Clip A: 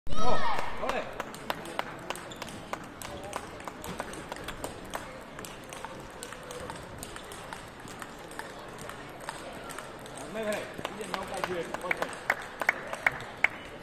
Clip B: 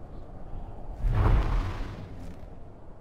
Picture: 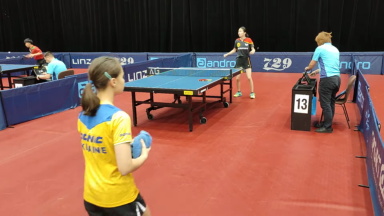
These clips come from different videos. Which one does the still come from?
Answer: A